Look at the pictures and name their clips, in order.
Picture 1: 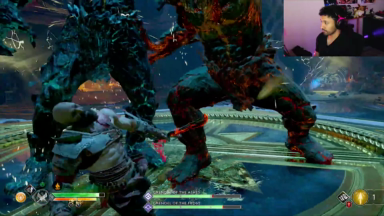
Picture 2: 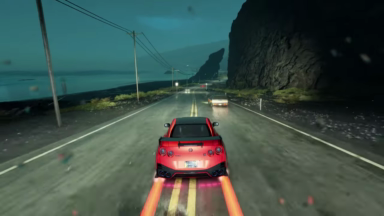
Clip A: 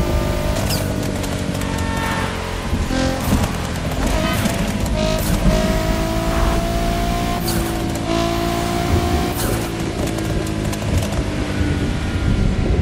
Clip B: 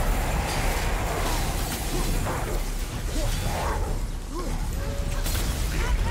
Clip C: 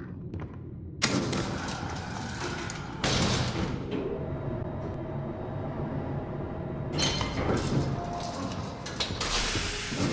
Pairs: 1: B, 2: A